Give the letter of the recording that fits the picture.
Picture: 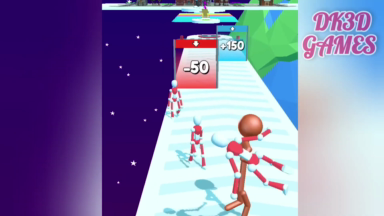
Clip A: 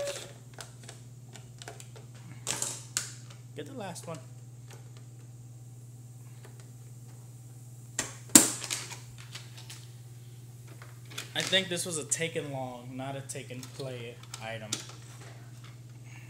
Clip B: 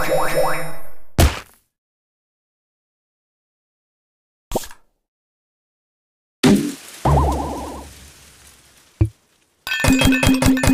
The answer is B